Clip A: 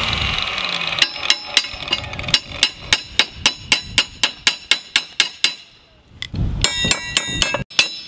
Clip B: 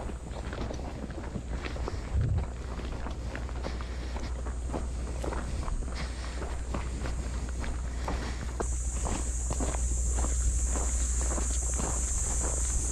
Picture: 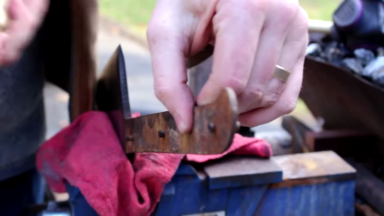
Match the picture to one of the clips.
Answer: A